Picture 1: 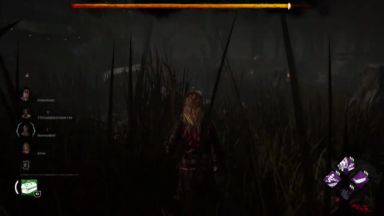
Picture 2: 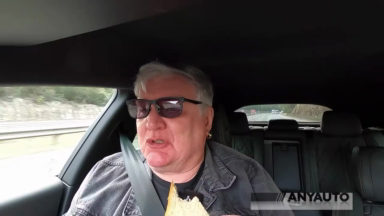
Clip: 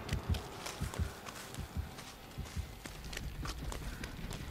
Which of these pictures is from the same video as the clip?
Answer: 1